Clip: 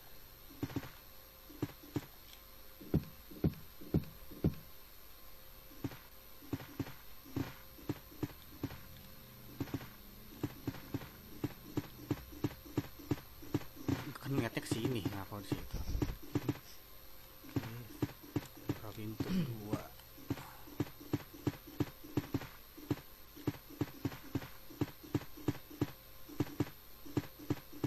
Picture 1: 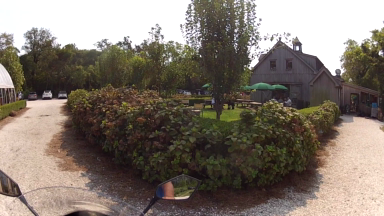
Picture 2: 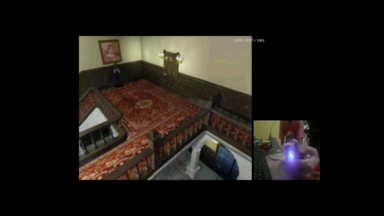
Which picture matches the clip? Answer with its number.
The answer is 2